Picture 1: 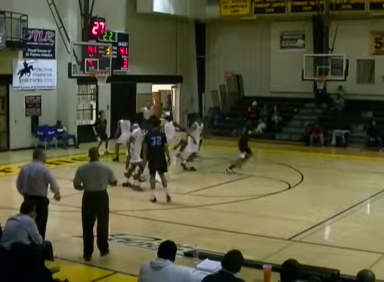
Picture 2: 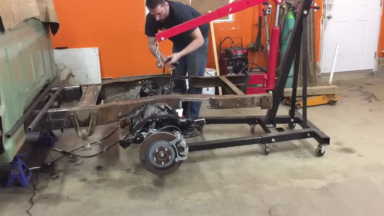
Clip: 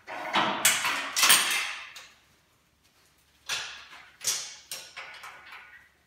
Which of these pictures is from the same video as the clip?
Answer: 2